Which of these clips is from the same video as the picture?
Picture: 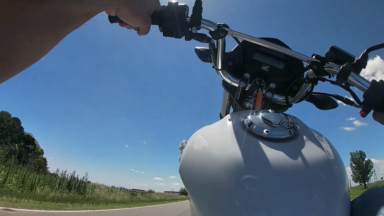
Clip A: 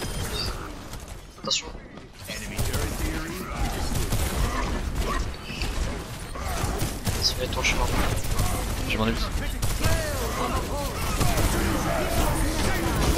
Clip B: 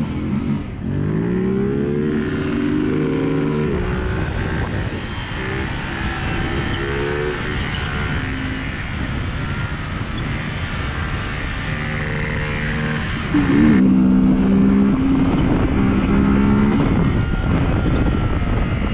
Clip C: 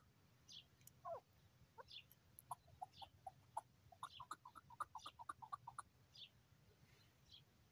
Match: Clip B